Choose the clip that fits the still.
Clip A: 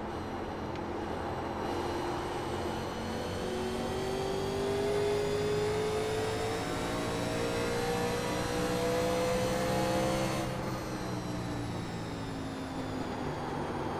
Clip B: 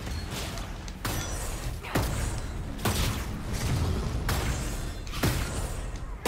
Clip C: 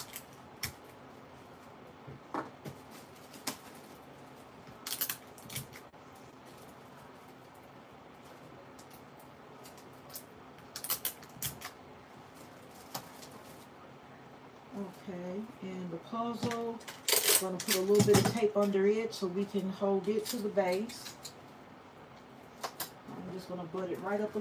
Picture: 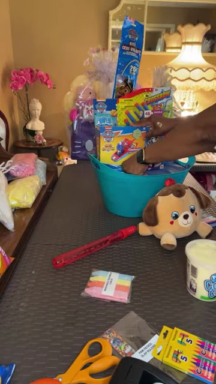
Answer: C